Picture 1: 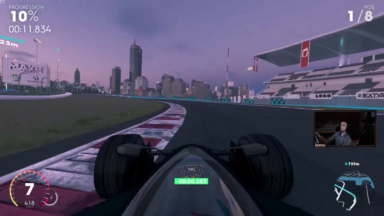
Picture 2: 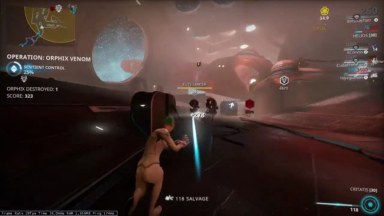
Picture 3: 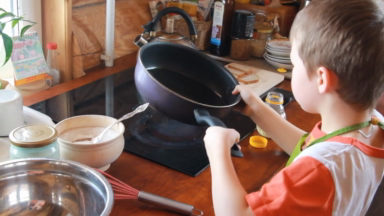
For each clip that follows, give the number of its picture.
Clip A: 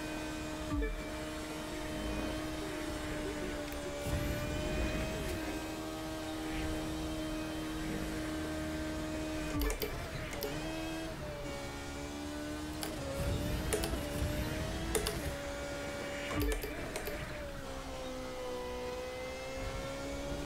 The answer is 1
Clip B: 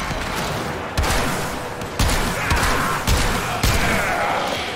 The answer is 2